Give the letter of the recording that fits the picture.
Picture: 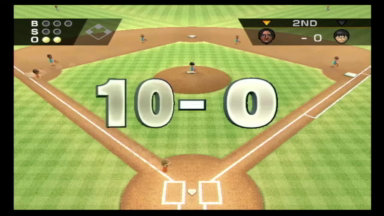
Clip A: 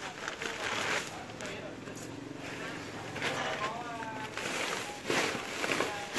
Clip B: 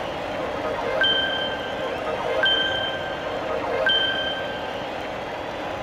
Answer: B